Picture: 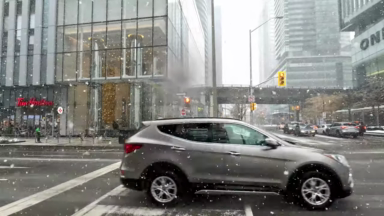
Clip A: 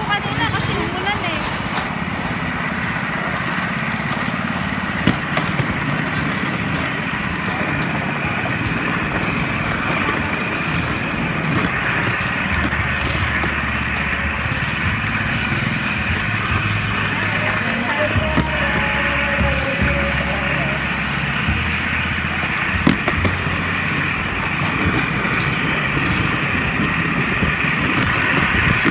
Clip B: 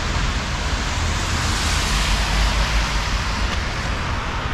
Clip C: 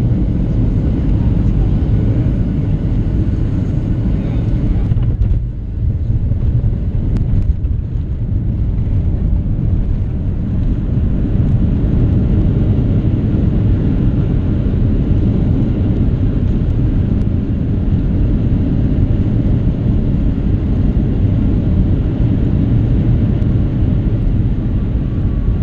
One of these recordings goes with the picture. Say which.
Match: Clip B